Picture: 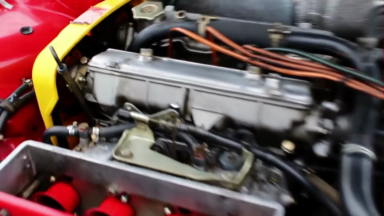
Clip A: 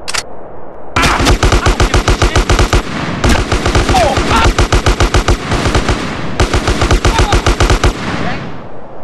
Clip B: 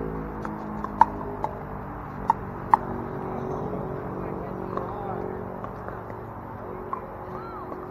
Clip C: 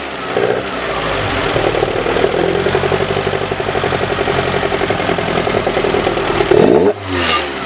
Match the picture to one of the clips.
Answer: C